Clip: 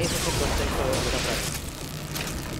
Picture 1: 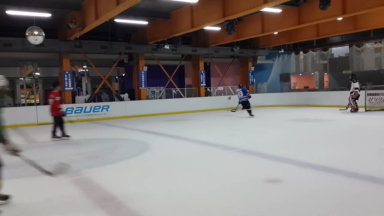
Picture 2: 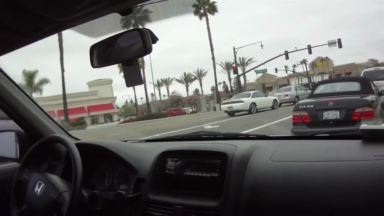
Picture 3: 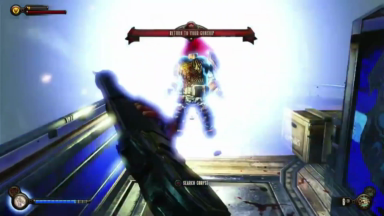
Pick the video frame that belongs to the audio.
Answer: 3